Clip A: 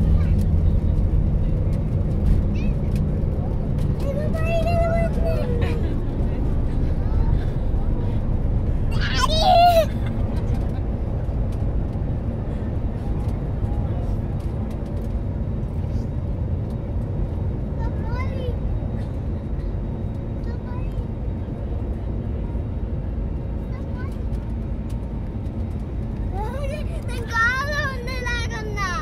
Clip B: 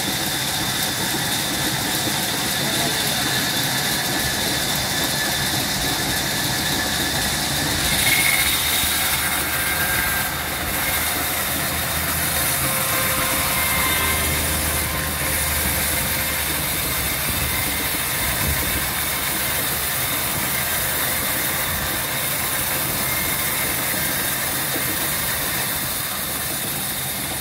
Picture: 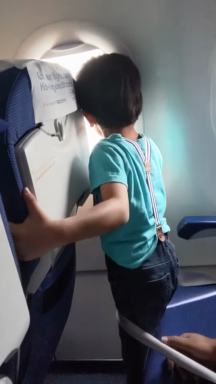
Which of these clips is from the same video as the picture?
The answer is A